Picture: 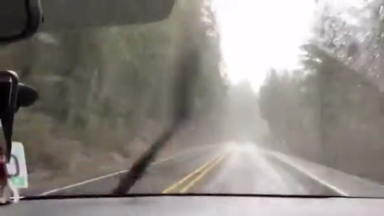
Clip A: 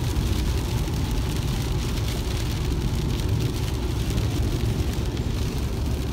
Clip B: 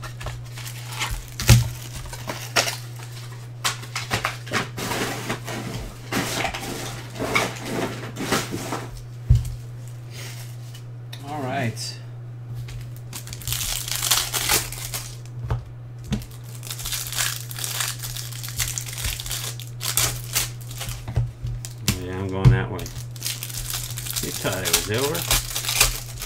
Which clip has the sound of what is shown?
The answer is A